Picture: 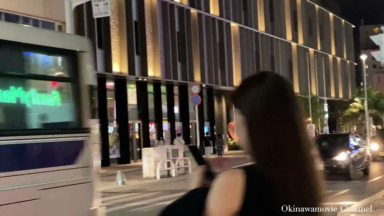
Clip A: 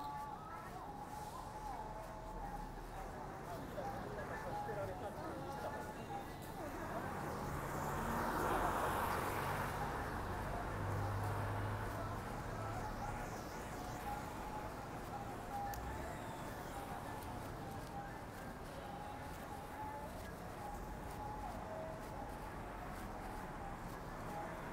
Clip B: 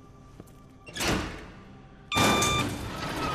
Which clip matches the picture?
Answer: A